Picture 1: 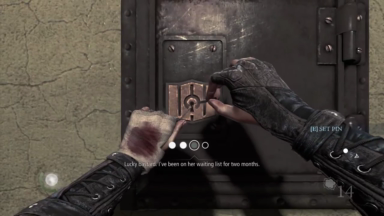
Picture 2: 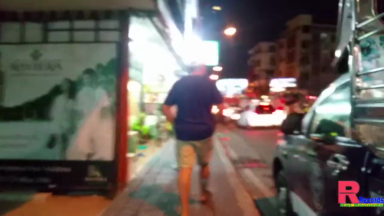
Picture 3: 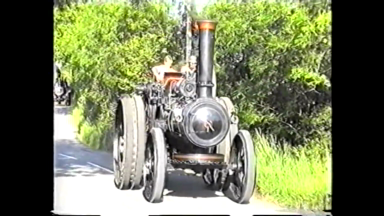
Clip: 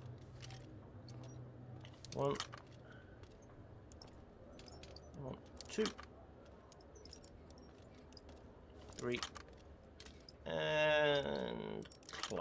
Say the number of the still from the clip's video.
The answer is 1